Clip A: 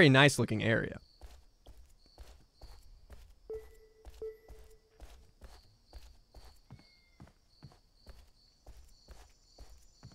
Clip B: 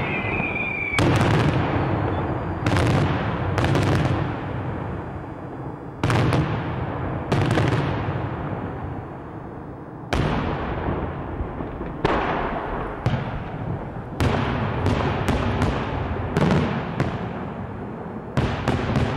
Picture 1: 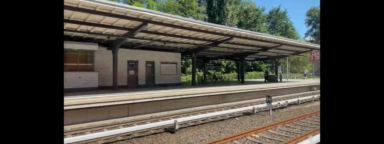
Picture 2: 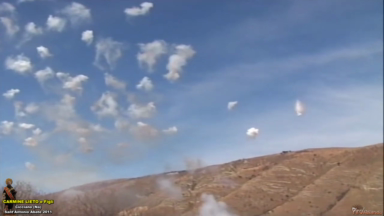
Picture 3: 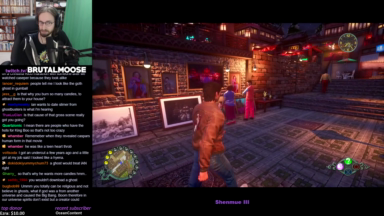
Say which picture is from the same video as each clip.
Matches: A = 3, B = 2